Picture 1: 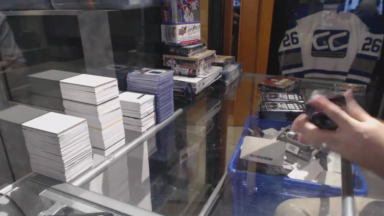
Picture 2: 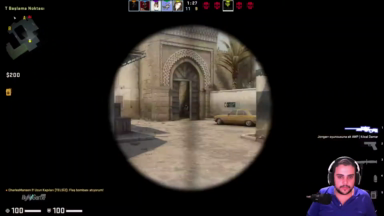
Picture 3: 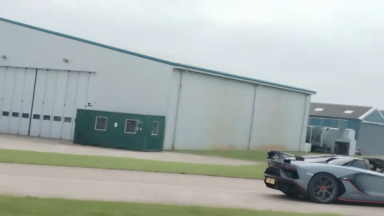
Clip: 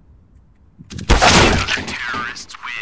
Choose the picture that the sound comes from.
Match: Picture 2